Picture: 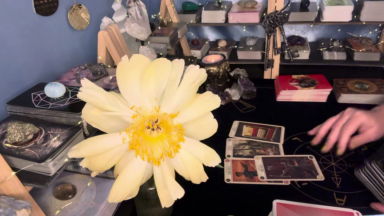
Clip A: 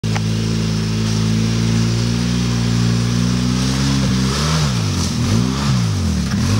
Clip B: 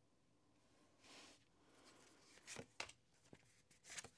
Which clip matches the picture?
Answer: B